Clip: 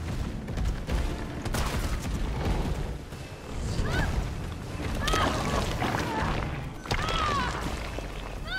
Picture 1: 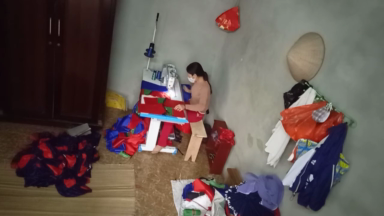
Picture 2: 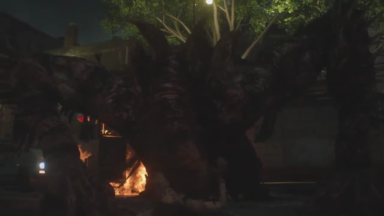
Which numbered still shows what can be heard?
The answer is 2